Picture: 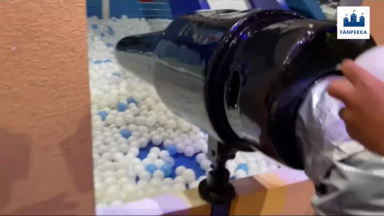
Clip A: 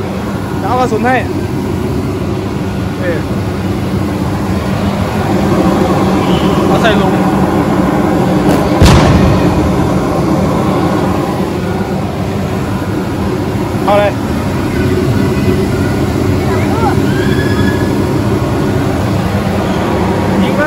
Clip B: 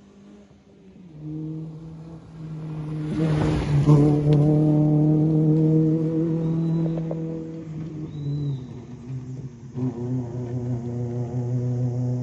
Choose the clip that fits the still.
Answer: A